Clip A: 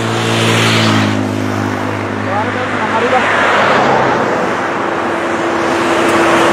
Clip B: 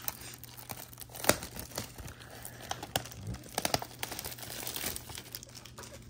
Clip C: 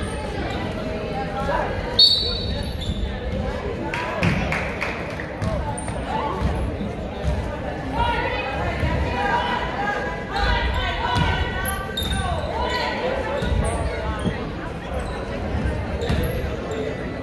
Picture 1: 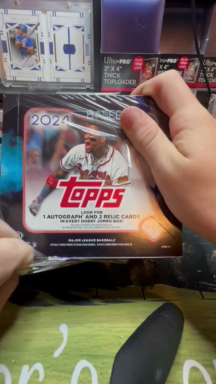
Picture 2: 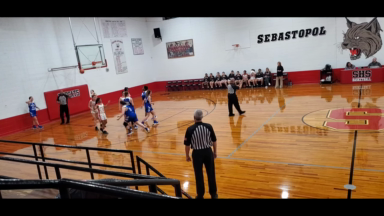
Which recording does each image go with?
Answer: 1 B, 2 C